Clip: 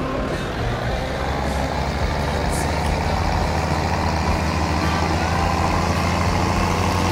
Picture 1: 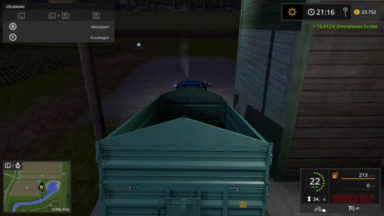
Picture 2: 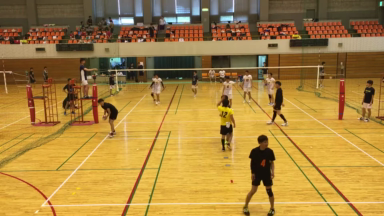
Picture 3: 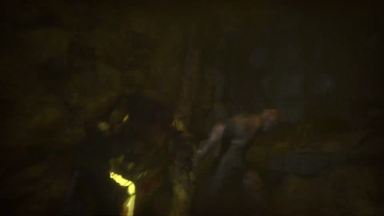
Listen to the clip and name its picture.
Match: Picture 1